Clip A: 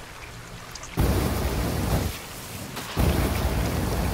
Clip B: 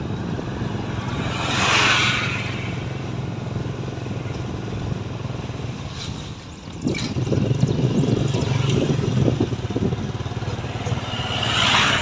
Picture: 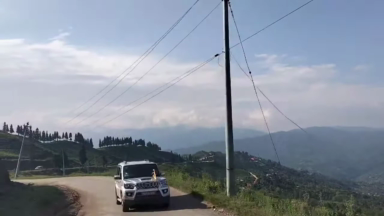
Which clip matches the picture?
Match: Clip B